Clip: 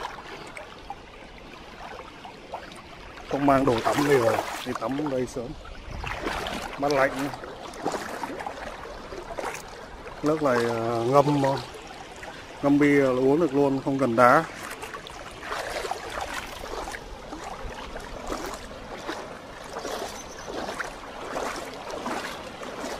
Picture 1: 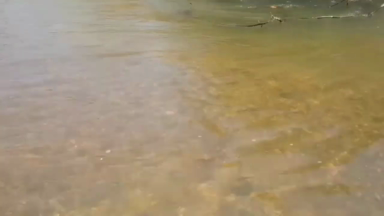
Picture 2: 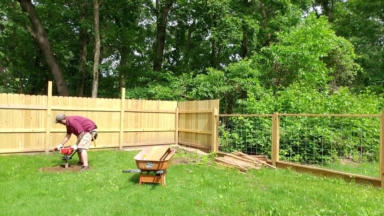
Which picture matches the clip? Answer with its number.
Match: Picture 1